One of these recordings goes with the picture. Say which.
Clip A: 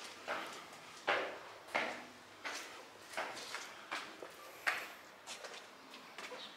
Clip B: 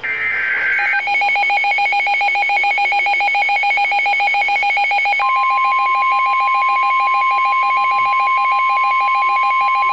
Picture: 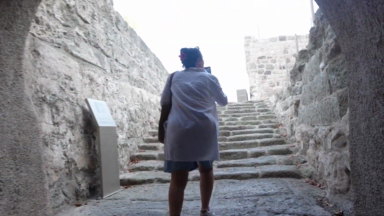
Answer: A